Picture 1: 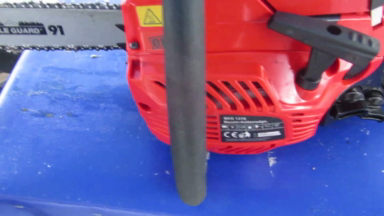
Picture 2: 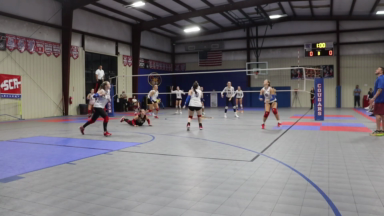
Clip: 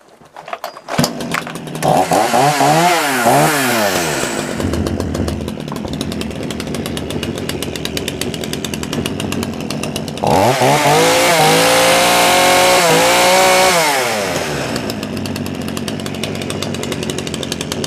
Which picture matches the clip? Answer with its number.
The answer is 1